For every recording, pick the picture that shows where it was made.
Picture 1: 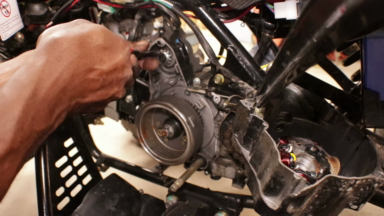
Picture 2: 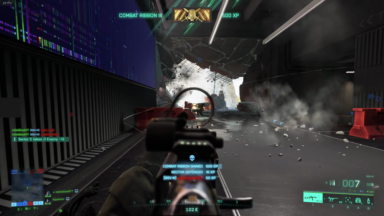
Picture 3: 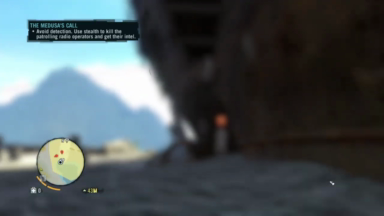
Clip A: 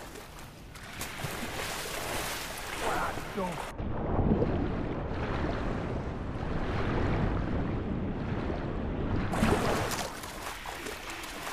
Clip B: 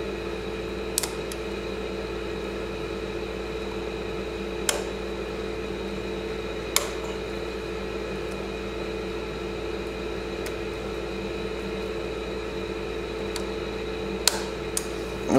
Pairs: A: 3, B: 1